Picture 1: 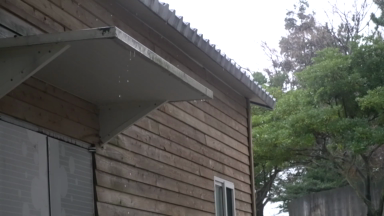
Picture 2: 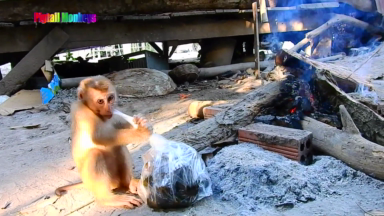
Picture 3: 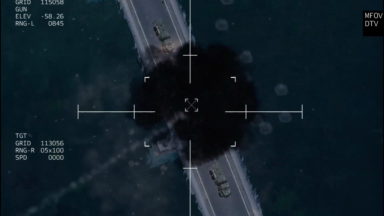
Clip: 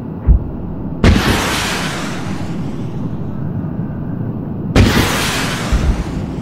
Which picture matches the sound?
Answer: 3